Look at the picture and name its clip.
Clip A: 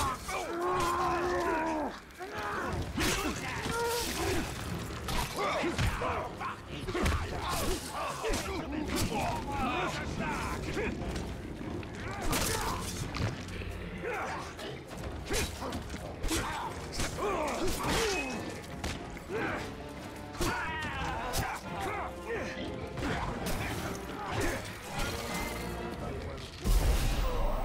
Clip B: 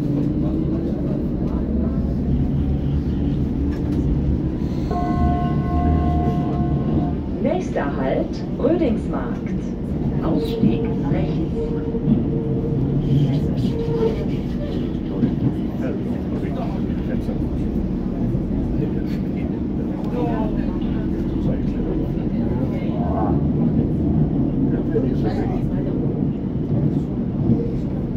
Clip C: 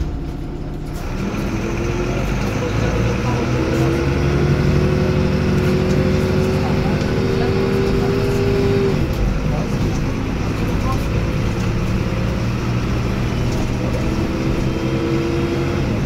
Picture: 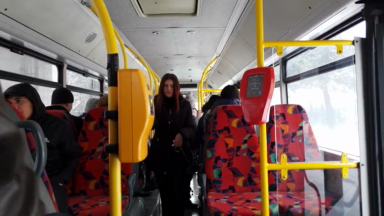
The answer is C